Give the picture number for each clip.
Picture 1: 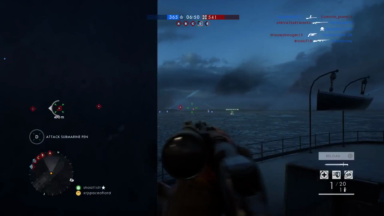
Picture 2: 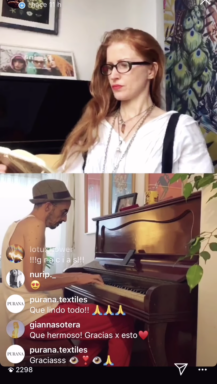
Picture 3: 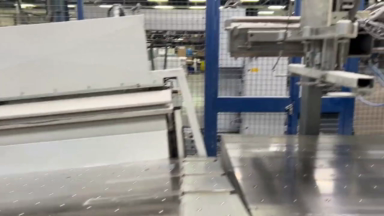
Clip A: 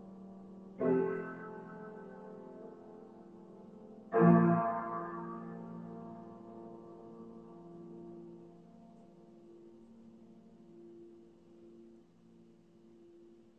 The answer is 2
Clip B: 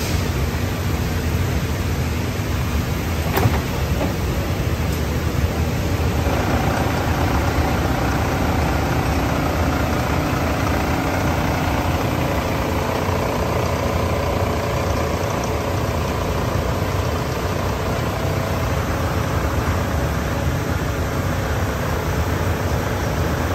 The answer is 3